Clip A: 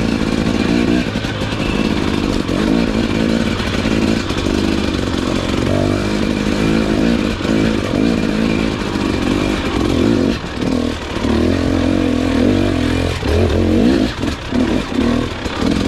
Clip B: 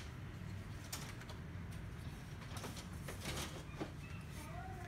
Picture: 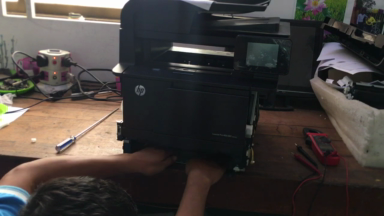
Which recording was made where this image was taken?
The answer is B